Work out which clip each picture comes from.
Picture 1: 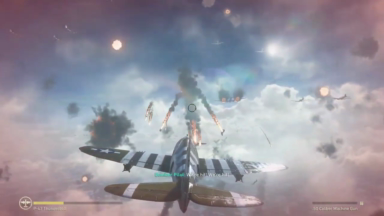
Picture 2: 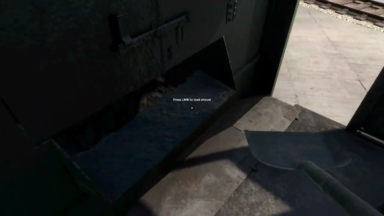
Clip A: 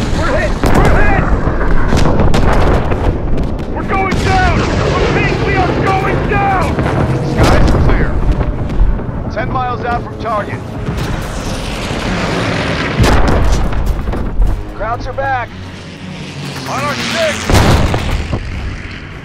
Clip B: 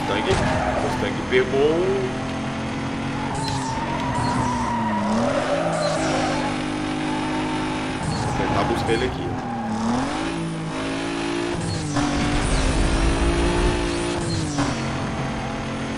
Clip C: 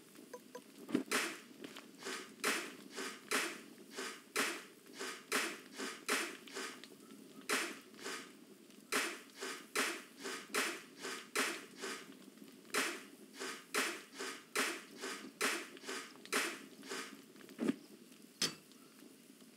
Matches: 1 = A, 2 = C